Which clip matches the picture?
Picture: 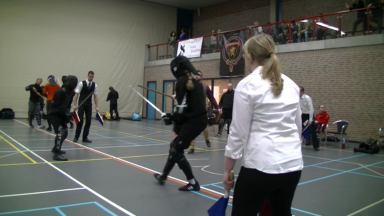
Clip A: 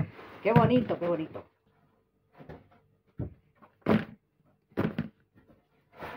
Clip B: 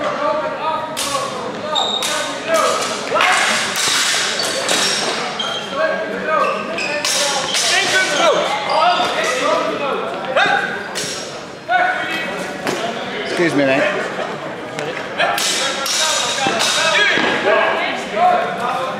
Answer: B